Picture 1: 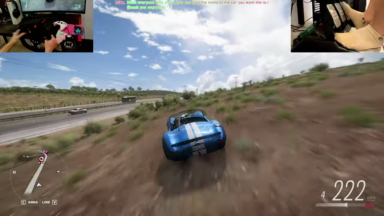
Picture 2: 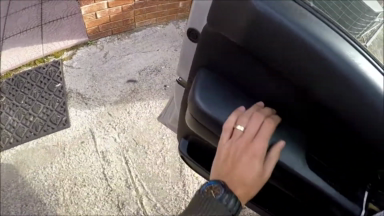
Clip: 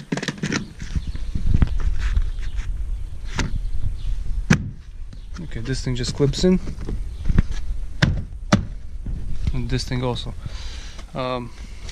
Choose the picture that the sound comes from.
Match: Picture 2